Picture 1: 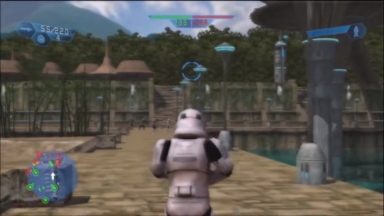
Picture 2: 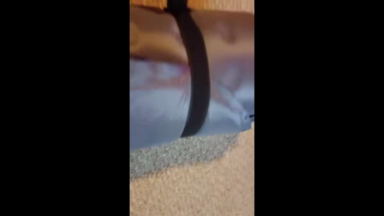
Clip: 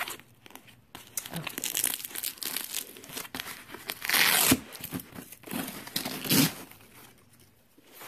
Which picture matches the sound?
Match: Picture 2